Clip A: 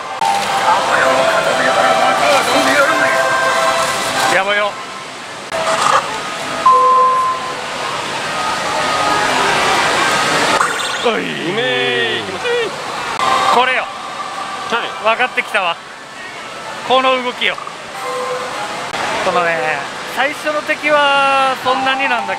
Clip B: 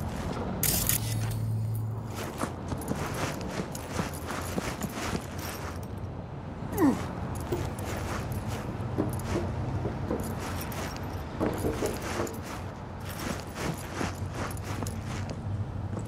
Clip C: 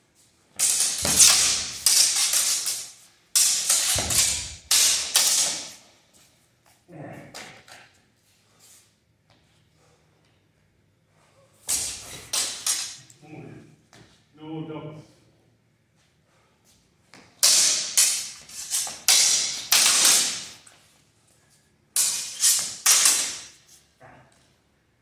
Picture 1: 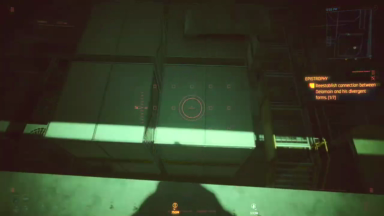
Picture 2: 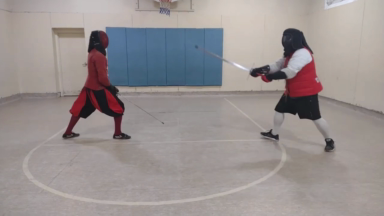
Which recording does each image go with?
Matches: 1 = B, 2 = C